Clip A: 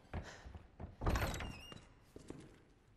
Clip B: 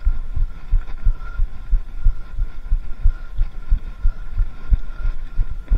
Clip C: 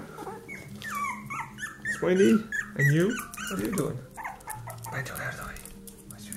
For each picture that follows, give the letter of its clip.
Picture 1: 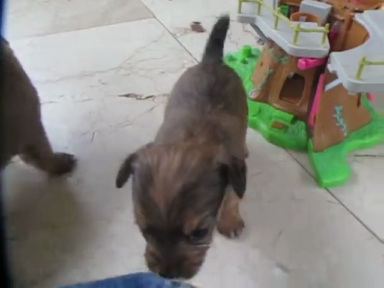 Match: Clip C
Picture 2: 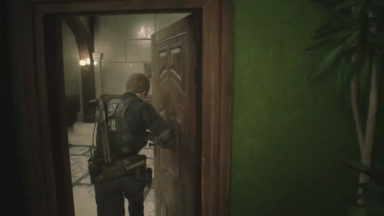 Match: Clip A